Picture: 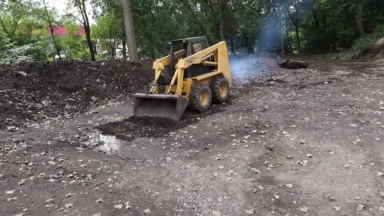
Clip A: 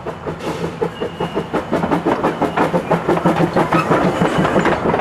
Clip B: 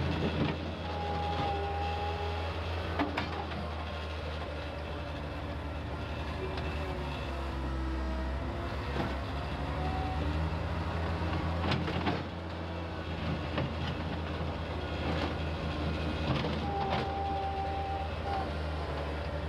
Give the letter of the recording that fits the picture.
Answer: B